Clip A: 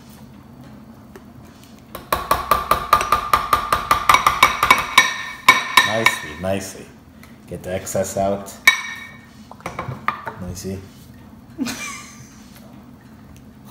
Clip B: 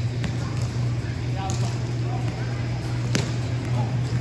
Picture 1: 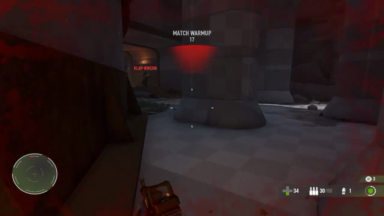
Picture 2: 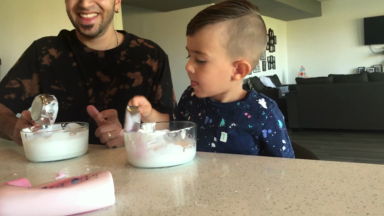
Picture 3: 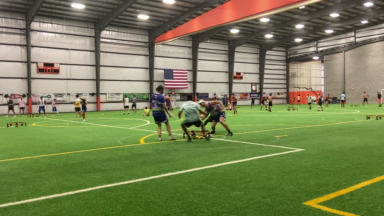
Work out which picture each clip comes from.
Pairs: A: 2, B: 3